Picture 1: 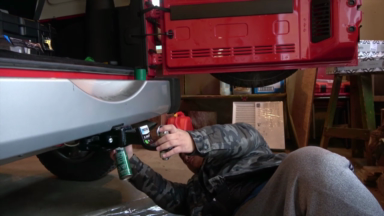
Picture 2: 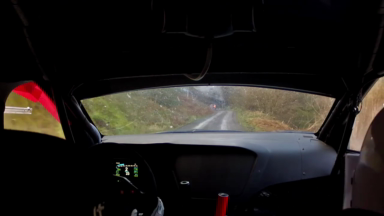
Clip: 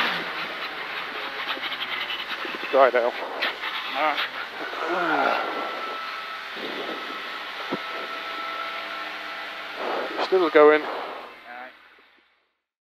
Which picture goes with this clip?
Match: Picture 2